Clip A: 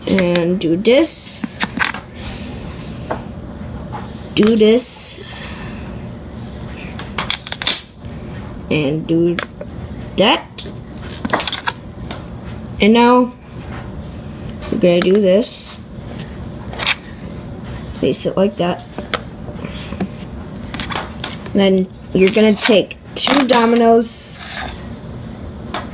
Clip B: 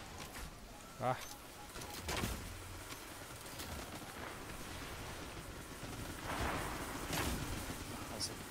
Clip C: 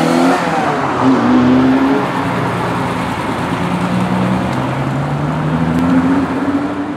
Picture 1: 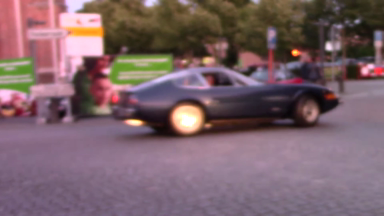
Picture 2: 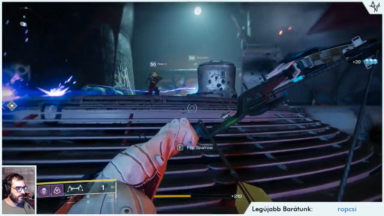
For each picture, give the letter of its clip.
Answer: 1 C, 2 B